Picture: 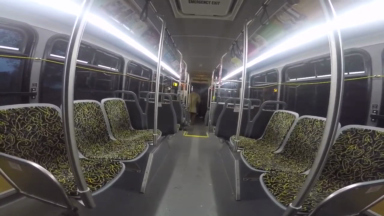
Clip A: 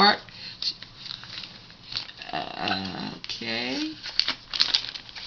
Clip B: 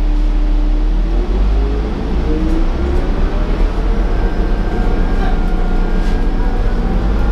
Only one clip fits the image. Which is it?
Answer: B